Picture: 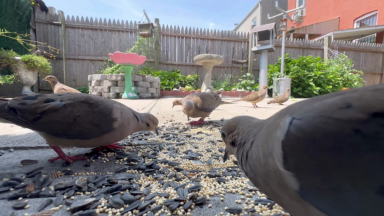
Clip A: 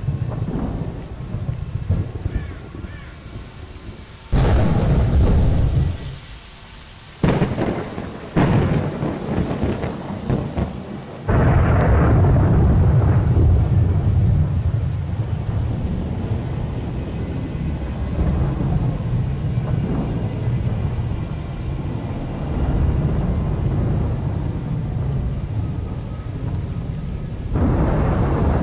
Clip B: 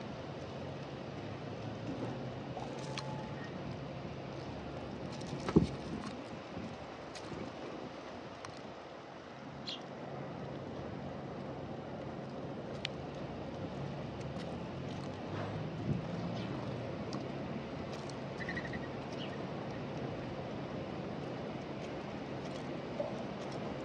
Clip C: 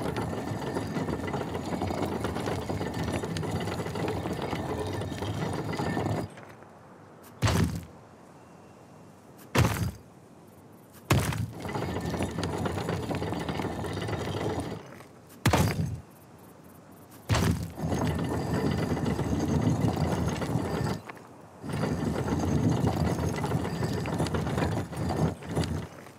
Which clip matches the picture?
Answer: B